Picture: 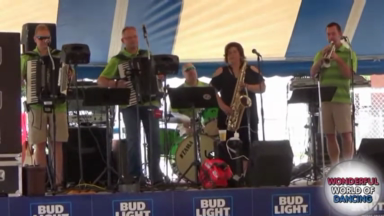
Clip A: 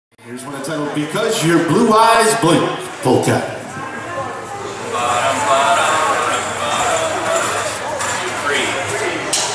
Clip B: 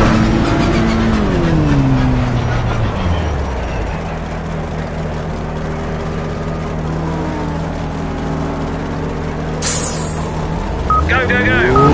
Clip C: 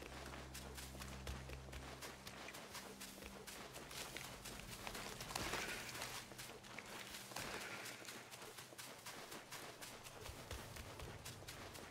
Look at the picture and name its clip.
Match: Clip A